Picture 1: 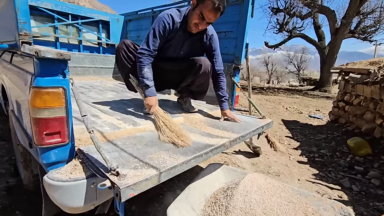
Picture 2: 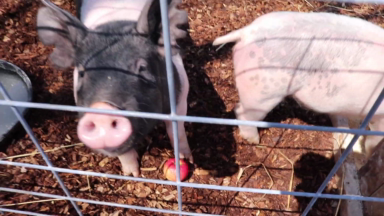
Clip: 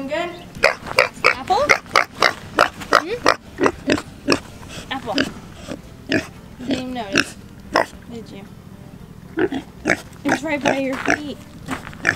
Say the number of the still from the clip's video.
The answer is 2